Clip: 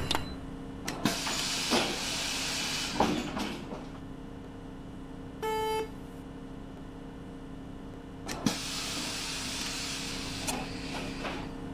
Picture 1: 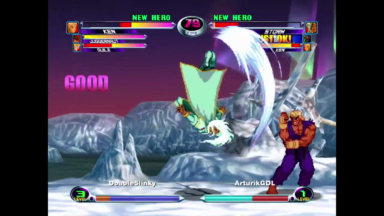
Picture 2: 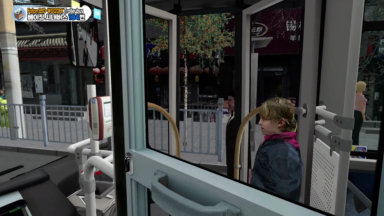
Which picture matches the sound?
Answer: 2